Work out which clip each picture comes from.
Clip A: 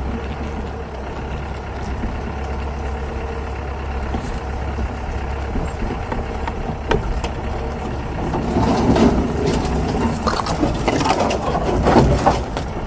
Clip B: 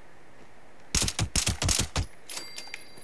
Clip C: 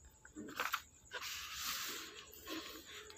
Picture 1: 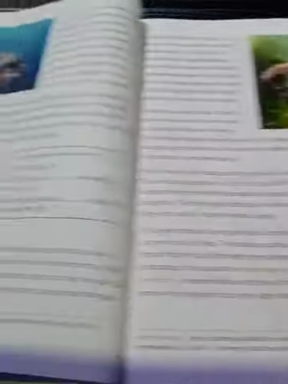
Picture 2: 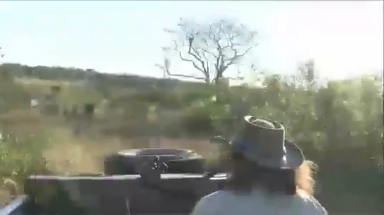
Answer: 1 C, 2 A